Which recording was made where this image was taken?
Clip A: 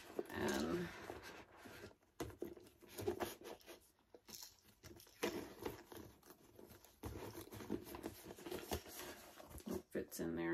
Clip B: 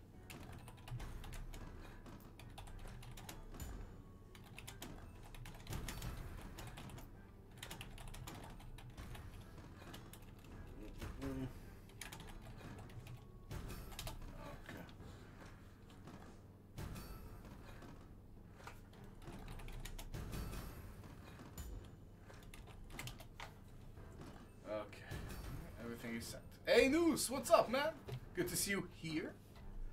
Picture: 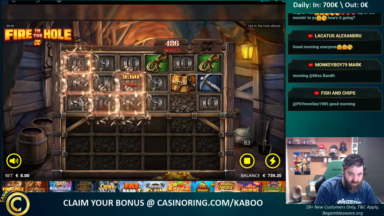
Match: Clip B